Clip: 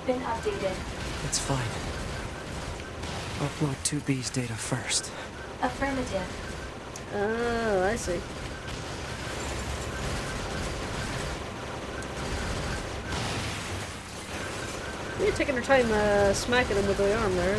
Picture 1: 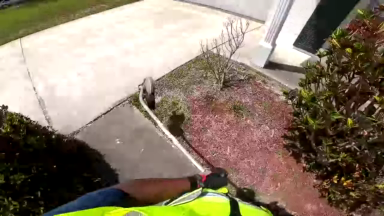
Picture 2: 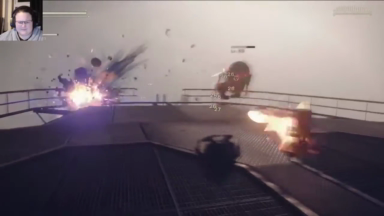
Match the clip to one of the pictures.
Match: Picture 2